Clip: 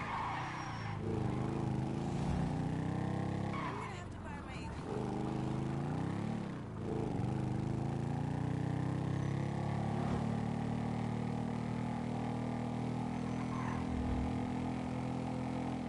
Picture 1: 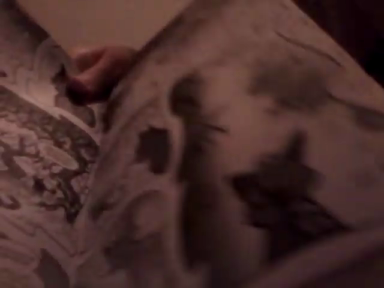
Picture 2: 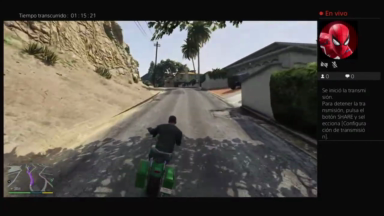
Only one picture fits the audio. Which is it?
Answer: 2